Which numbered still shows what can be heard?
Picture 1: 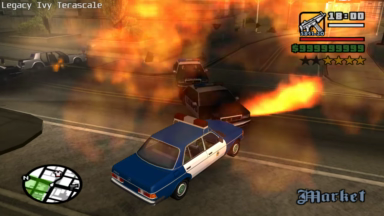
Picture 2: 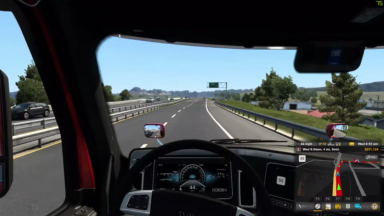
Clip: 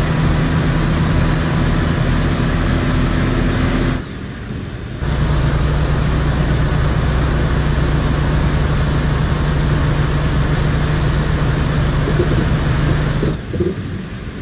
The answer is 2